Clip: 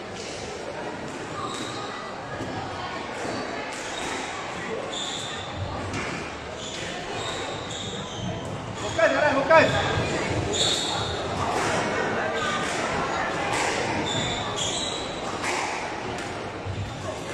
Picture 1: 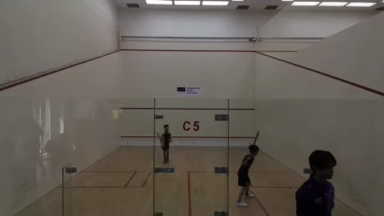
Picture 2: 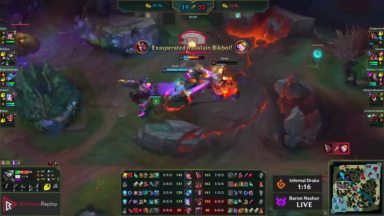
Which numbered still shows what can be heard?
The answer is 1